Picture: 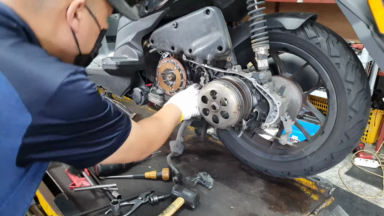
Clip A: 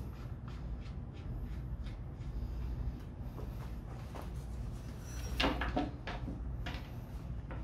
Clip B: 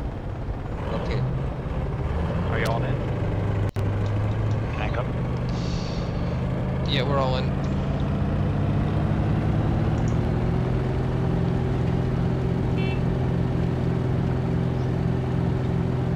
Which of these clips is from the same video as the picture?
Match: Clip A